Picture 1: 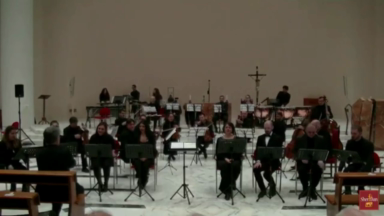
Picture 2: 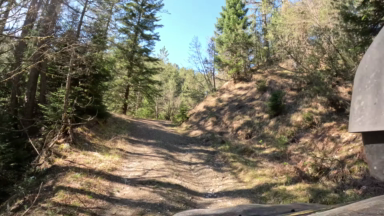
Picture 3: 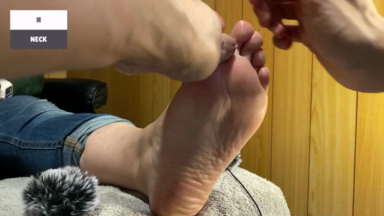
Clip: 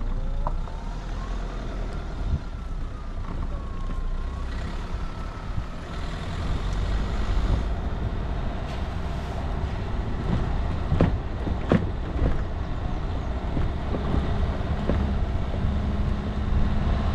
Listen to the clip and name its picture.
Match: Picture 2